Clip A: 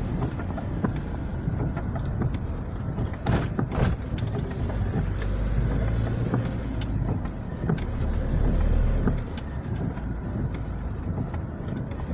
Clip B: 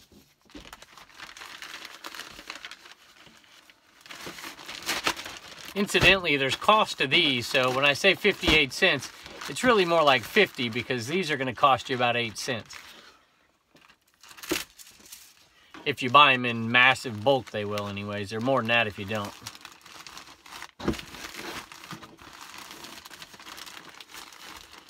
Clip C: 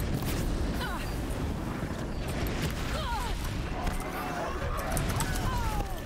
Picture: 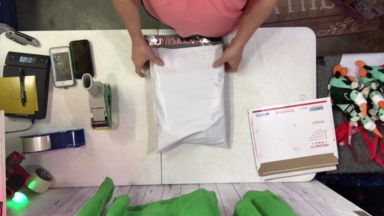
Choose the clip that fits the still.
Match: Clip B